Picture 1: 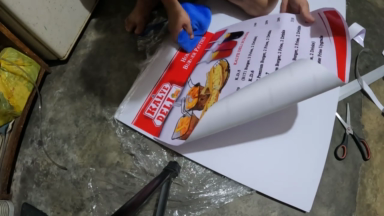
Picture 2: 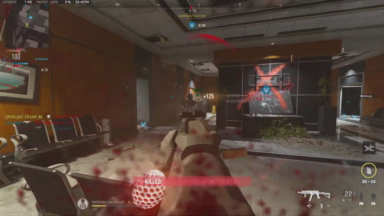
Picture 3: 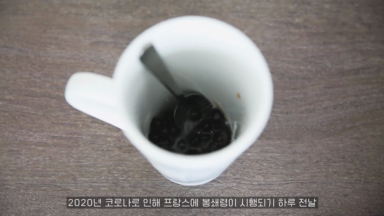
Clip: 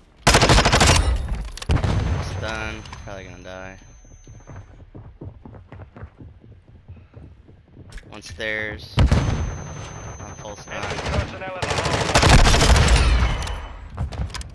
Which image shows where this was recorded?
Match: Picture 2